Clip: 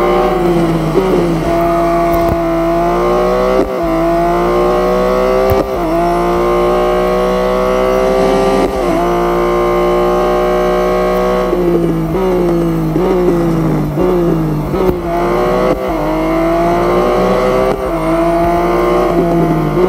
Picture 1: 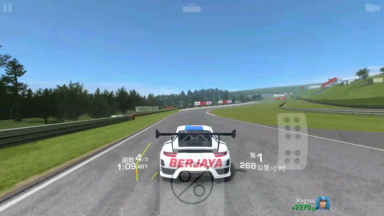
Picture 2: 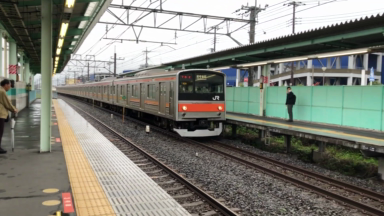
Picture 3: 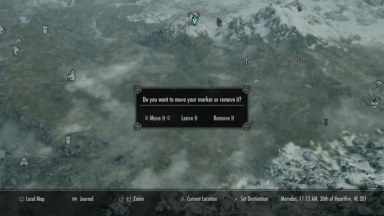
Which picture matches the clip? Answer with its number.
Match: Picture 1